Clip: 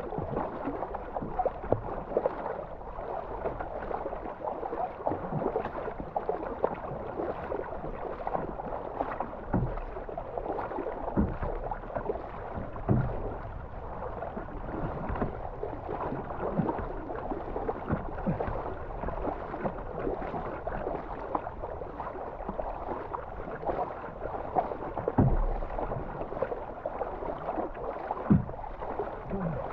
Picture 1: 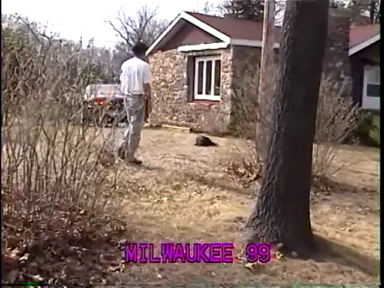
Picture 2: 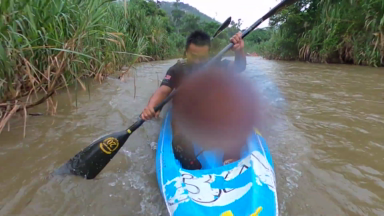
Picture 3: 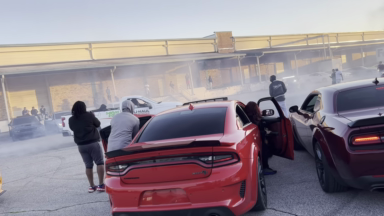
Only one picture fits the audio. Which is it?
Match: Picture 2